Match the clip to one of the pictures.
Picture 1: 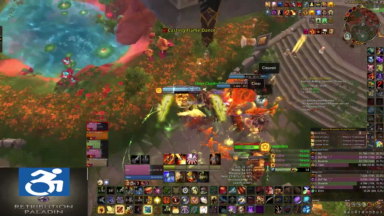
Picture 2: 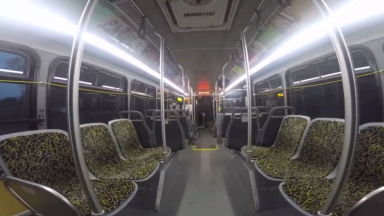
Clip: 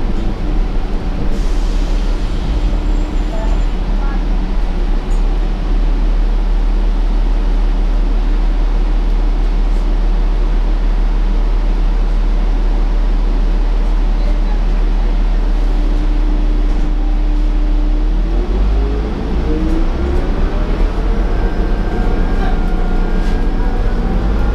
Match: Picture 2